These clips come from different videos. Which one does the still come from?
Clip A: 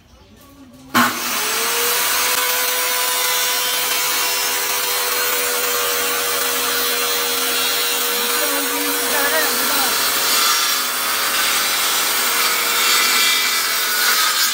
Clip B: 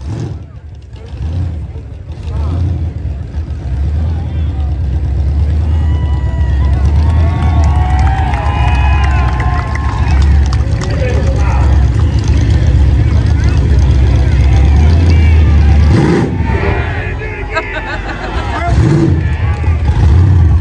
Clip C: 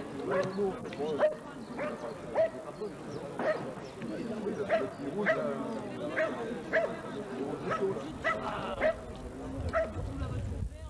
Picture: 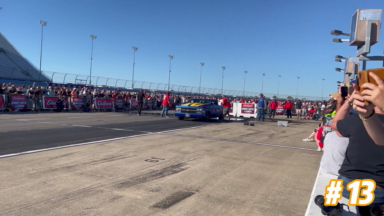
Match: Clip B